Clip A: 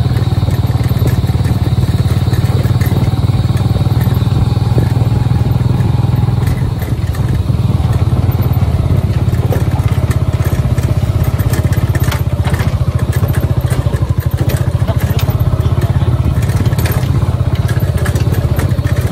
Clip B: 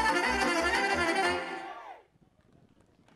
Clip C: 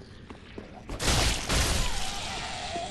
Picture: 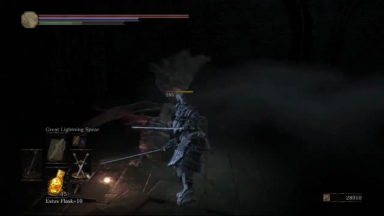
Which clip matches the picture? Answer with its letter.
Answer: C